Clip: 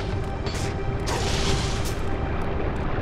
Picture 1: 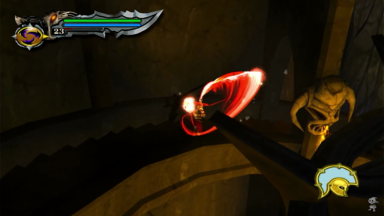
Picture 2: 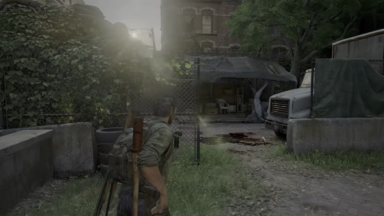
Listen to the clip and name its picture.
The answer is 1